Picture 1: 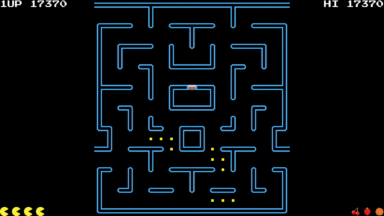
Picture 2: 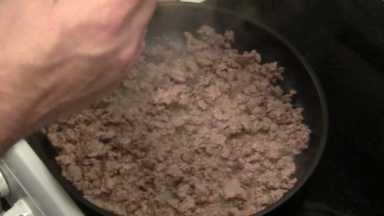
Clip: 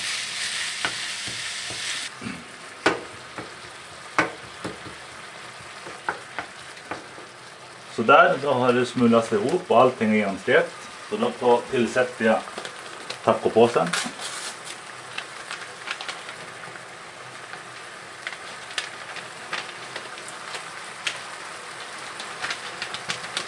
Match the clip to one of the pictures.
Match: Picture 2